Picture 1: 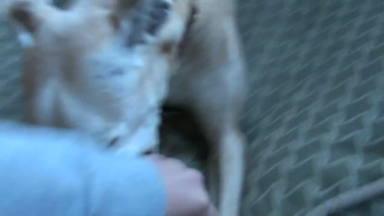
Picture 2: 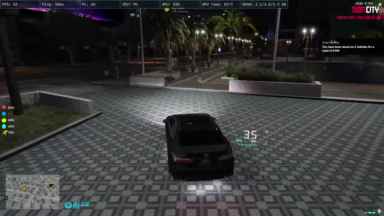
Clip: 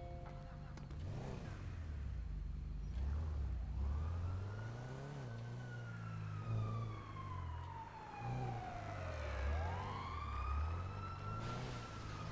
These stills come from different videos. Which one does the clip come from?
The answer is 2